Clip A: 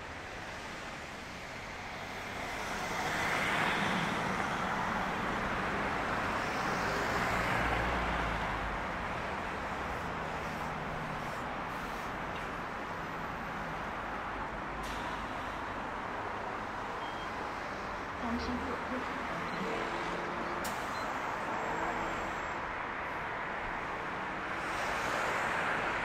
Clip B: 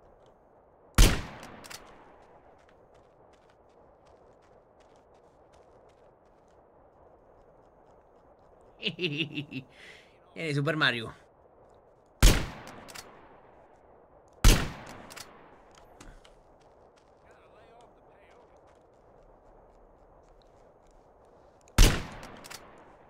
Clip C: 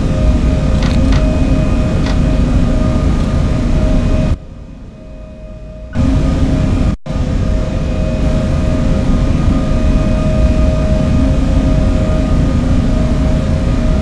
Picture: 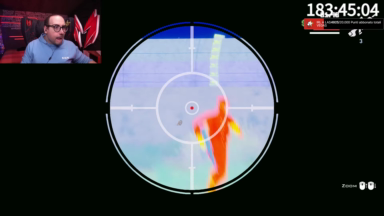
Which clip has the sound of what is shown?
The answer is B